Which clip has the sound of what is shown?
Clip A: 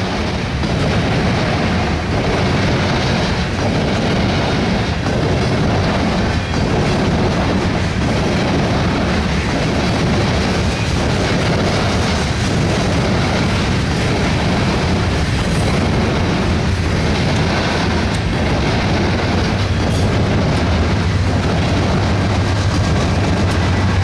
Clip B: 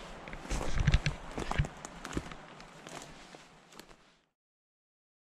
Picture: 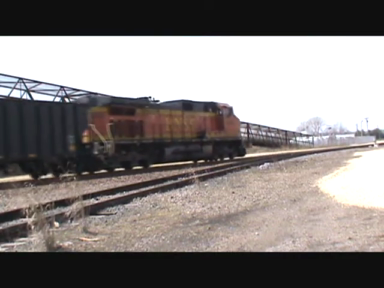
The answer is A